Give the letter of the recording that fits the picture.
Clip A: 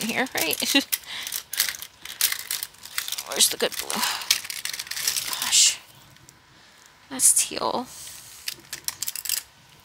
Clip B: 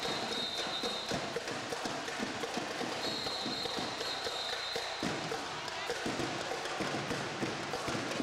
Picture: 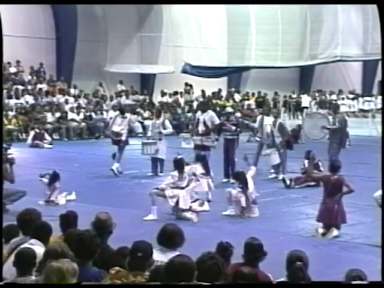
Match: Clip B